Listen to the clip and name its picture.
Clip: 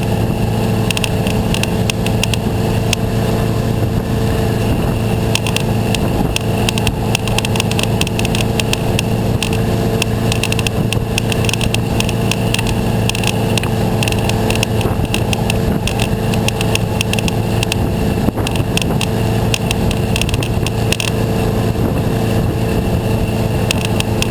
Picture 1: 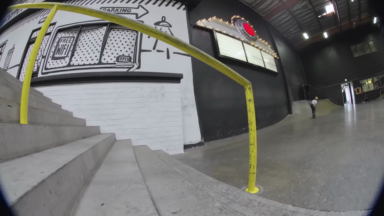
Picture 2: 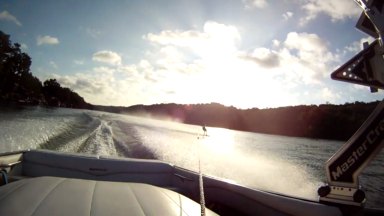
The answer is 2